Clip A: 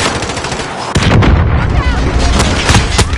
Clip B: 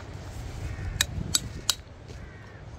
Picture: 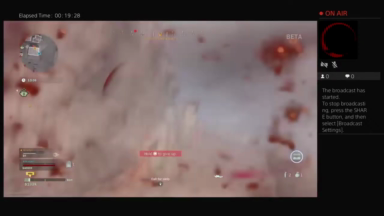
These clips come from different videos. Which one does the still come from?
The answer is A